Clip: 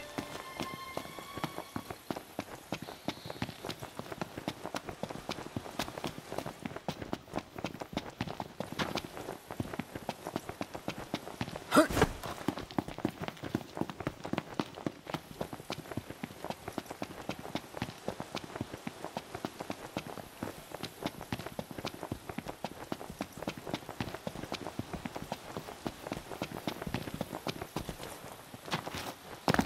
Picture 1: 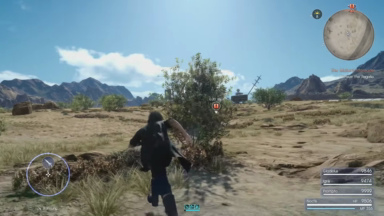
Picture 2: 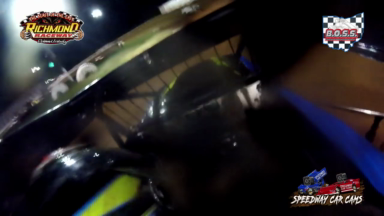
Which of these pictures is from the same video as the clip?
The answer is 1